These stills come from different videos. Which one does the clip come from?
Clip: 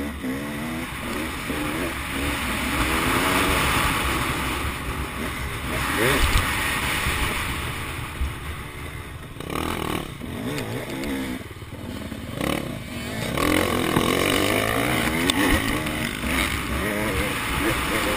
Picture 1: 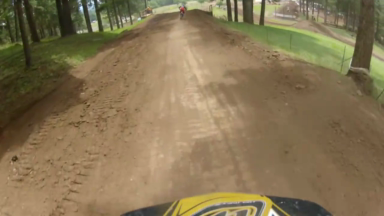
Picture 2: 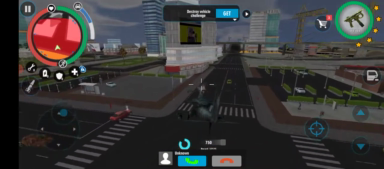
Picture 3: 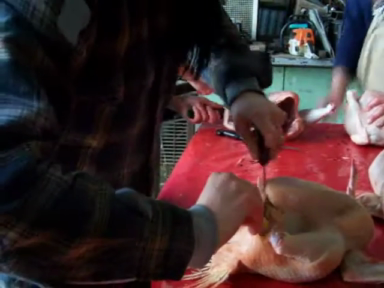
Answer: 1